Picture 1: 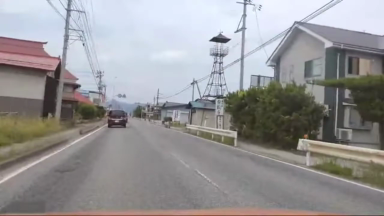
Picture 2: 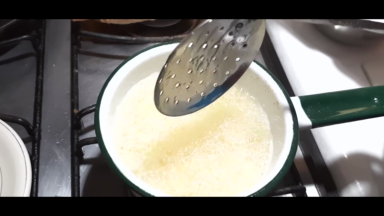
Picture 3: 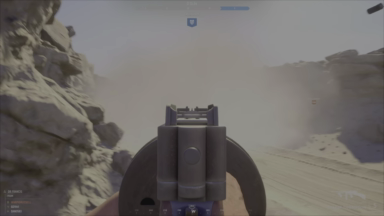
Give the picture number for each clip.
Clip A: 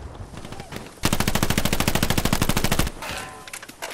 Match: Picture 3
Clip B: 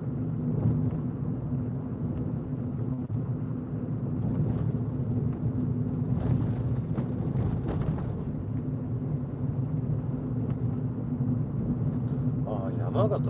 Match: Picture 1